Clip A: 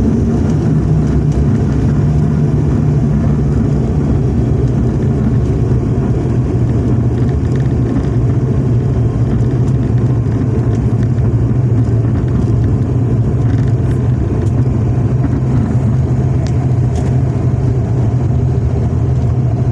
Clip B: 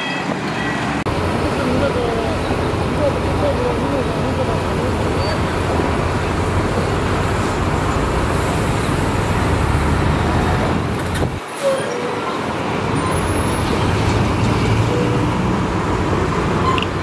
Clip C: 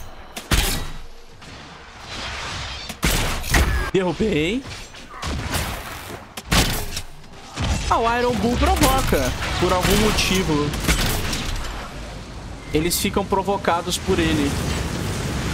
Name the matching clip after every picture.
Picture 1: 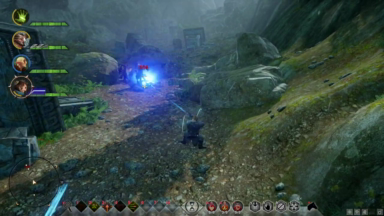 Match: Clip C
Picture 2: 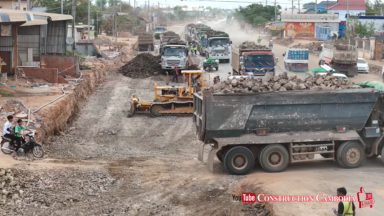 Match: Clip B